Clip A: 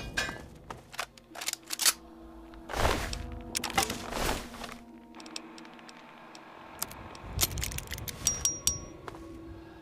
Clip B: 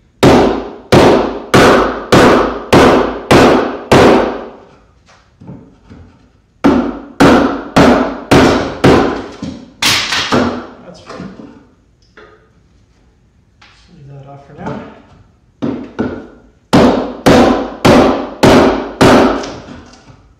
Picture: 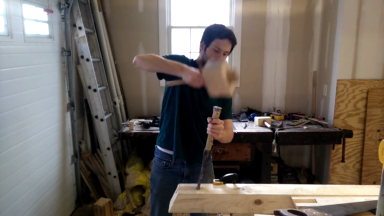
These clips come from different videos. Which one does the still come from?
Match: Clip B